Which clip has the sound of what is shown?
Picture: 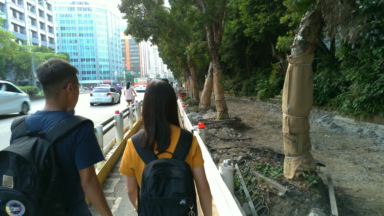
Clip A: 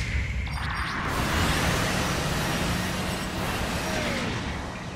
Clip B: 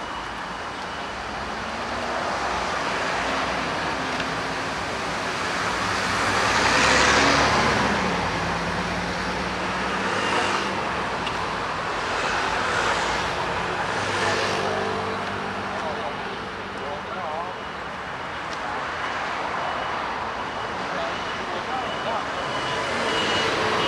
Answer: B